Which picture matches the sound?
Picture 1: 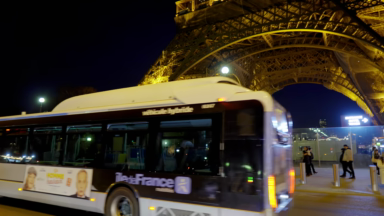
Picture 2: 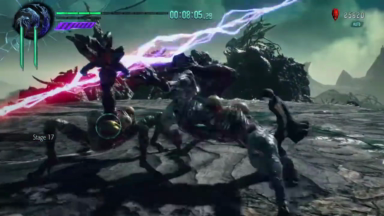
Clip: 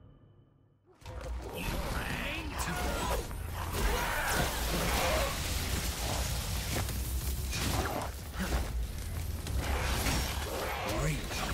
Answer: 2